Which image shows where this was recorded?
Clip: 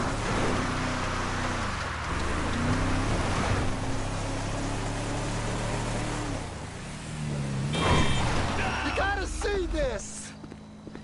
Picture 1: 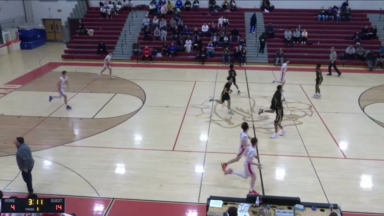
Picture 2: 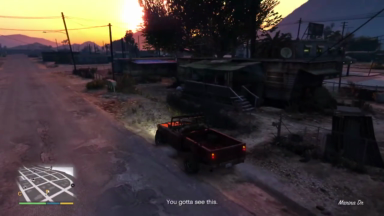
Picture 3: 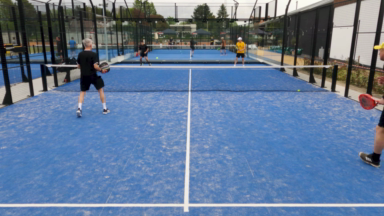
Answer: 2